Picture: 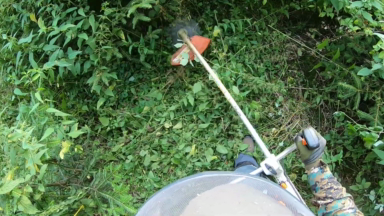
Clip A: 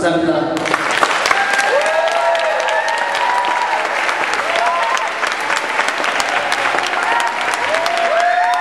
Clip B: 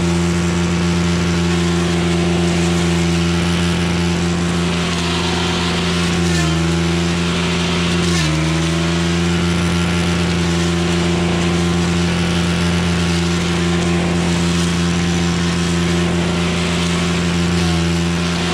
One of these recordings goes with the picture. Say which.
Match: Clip B